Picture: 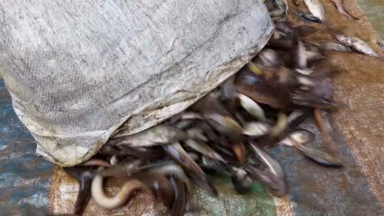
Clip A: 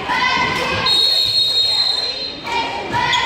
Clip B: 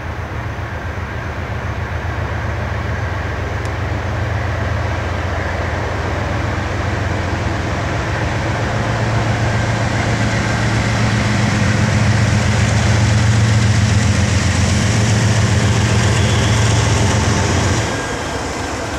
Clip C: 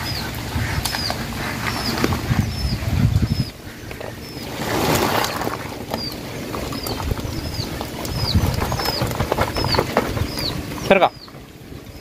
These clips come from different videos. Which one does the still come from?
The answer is C